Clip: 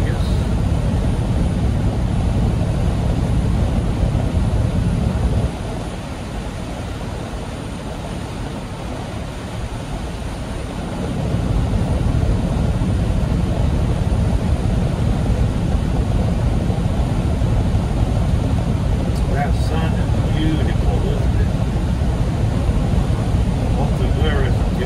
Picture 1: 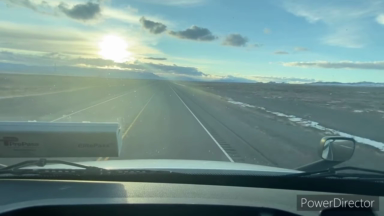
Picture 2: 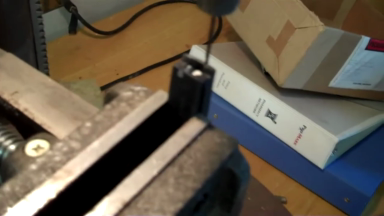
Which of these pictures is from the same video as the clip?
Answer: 1